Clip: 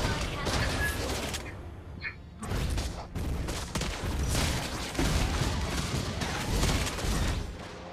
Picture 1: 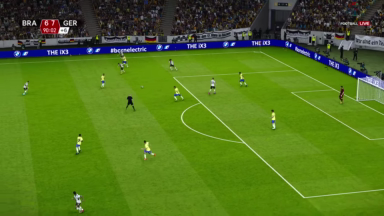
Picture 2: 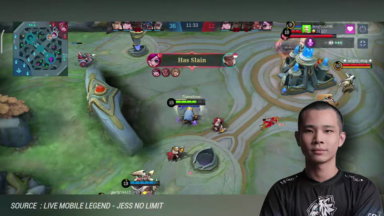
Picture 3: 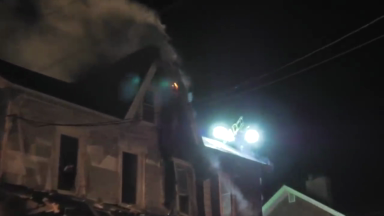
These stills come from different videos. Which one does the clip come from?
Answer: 2